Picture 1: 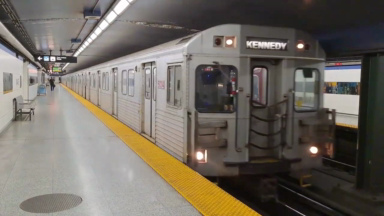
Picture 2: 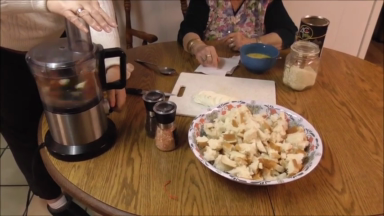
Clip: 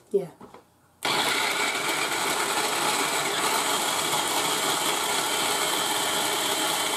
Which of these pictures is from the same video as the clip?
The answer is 2